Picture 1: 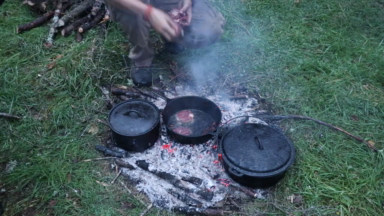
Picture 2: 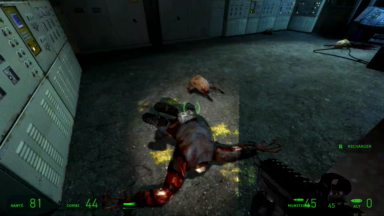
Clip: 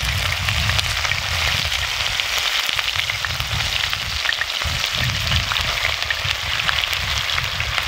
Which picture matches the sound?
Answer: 1